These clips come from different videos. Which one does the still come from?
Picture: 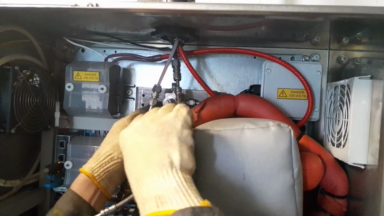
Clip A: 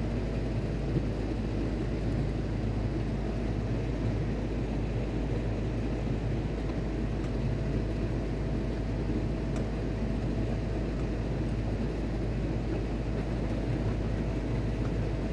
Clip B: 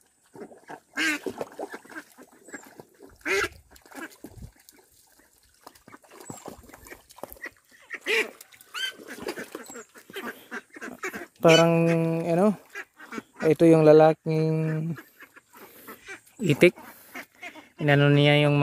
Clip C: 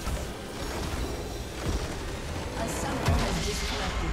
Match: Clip A